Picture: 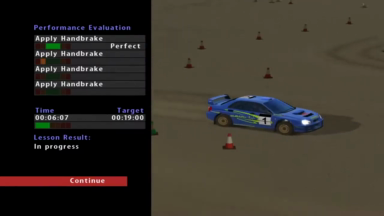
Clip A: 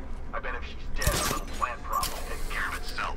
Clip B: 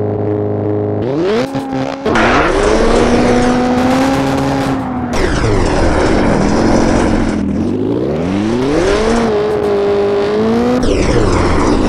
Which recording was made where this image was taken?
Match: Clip B